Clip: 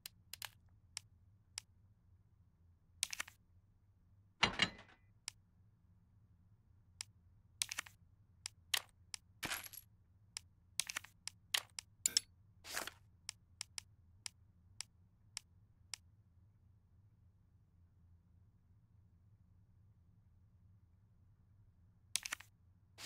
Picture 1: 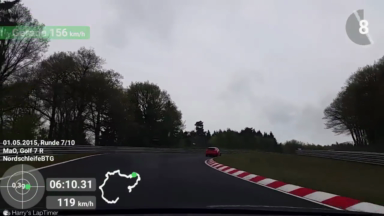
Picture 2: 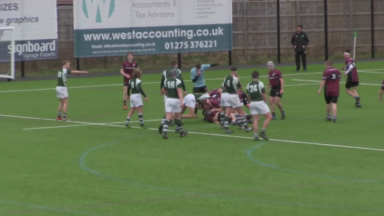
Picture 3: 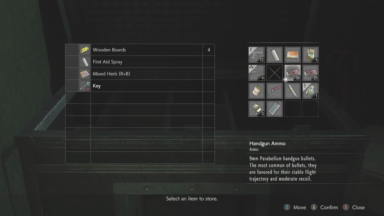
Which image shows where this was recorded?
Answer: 3